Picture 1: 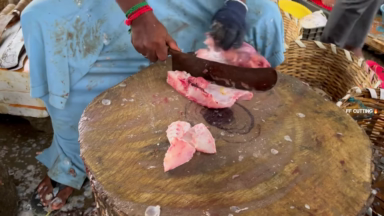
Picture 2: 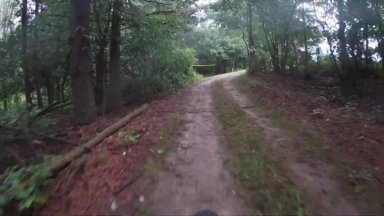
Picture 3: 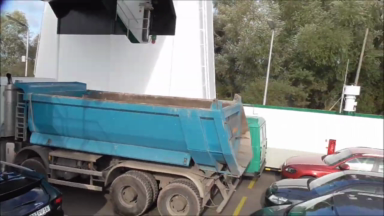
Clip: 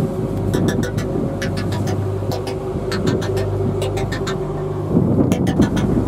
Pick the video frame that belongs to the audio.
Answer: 3